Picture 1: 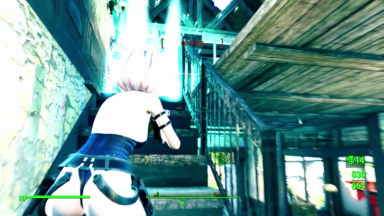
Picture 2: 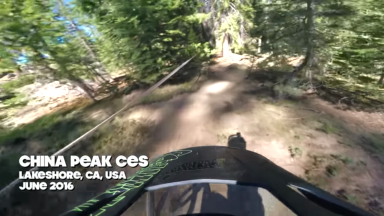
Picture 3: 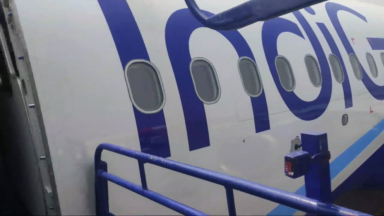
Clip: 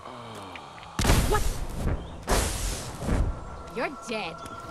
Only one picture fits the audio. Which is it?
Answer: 1